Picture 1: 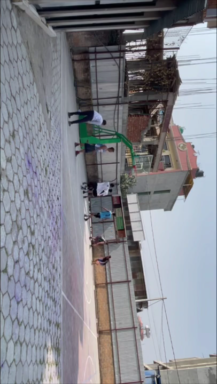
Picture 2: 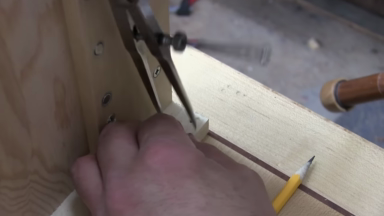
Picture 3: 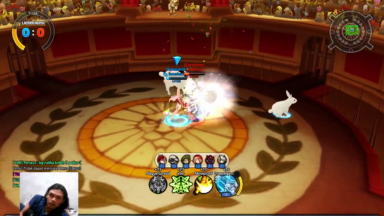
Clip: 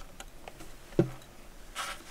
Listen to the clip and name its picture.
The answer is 2